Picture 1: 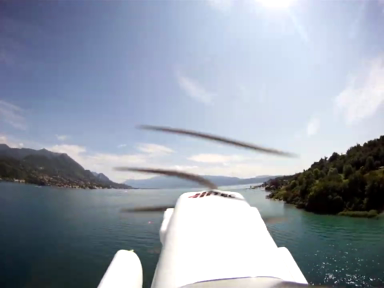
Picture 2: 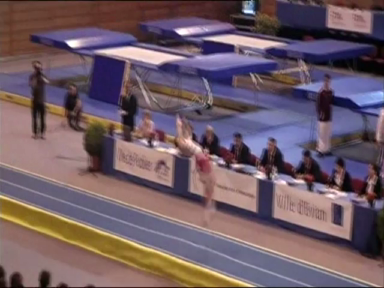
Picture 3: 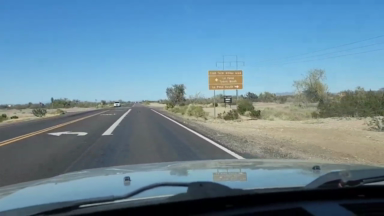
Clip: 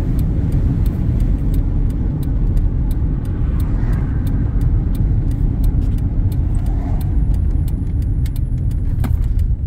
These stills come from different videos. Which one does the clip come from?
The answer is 3